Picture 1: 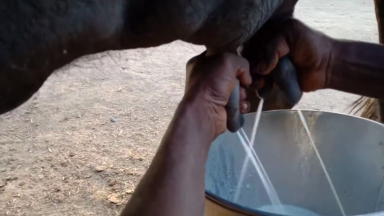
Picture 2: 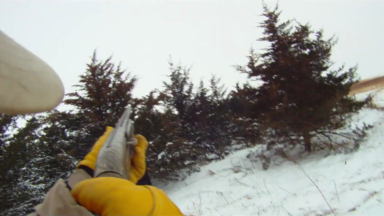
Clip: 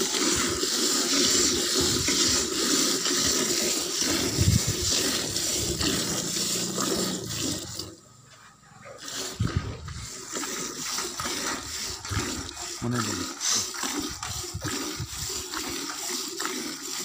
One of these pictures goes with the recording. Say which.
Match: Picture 1